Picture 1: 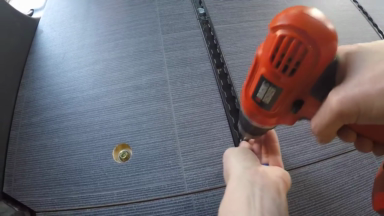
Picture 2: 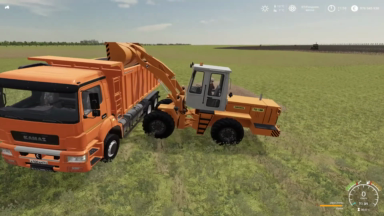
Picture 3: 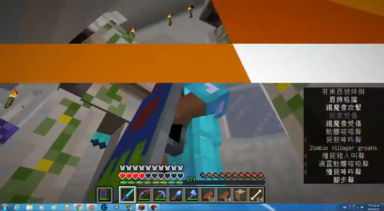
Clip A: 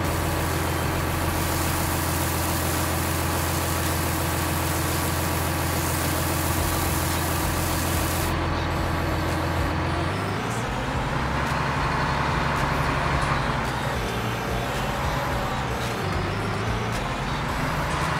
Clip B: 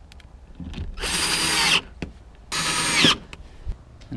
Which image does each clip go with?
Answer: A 2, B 1